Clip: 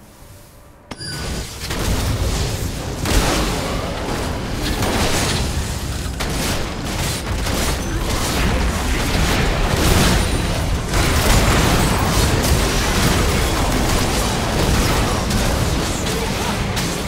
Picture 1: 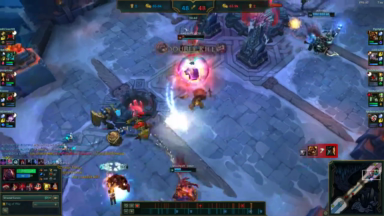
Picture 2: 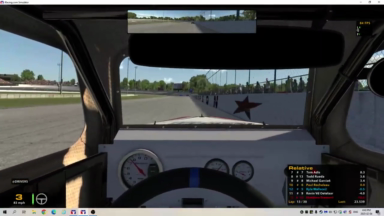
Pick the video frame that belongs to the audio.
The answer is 1